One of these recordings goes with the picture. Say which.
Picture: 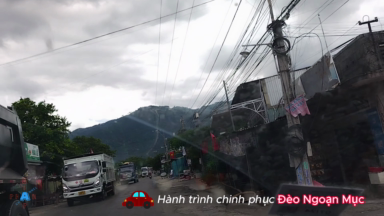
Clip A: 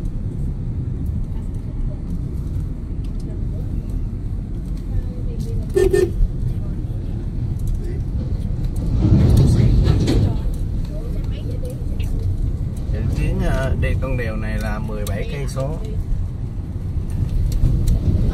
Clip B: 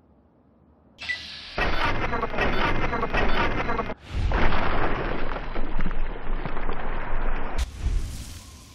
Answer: A